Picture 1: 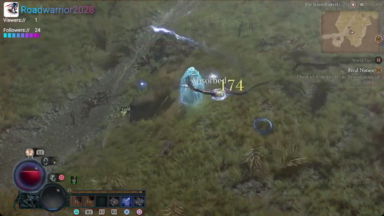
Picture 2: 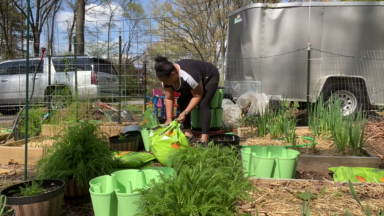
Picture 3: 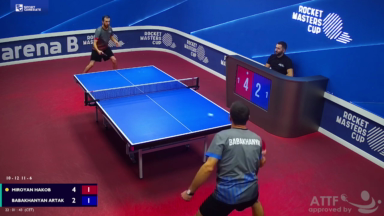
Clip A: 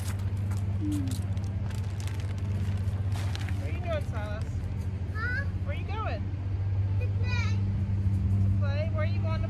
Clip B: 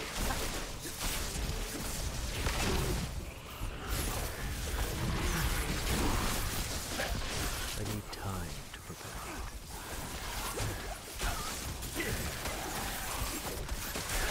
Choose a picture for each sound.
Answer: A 2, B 1